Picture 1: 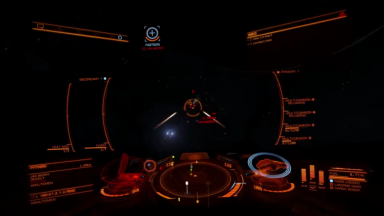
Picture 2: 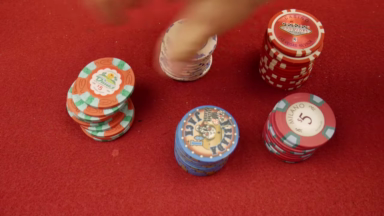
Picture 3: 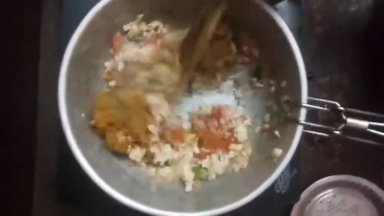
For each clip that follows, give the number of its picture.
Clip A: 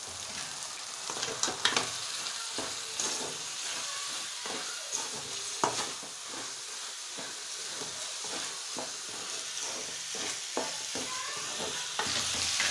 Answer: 3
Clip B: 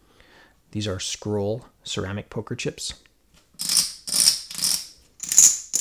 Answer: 2